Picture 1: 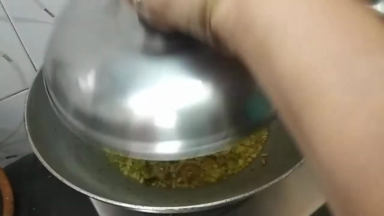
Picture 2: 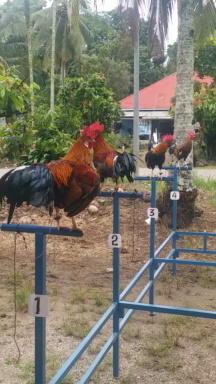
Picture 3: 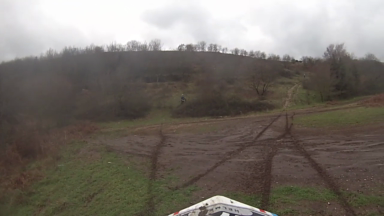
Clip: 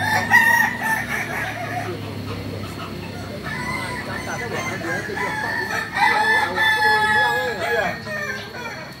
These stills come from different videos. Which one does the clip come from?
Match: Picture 2